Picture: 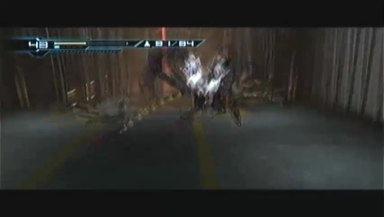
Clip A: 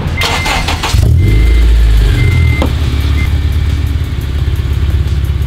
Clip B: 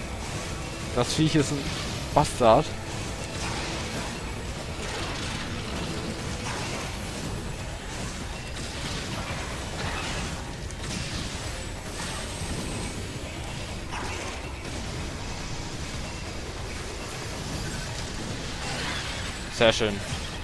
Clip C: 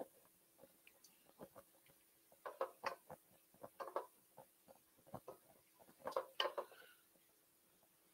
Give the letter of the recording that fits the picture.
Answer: B